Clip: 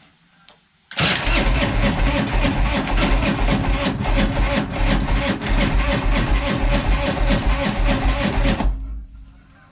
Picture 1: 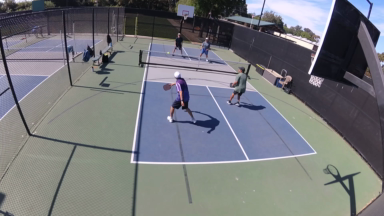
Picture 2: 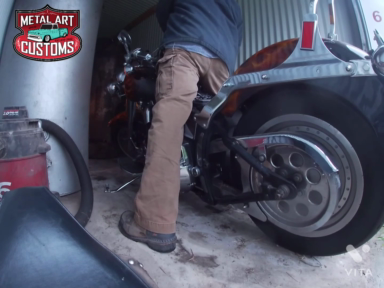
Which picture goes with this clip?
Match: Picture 2